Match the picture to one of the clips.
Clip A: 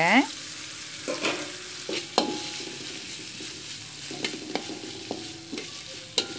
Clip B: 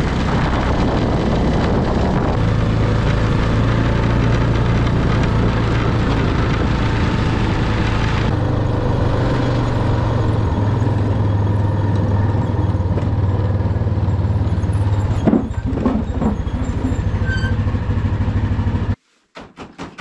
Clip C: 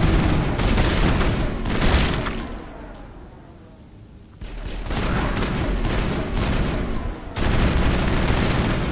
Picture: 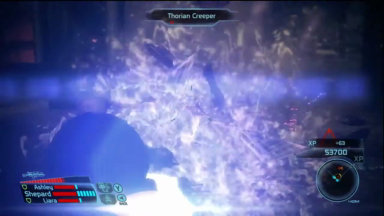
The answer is C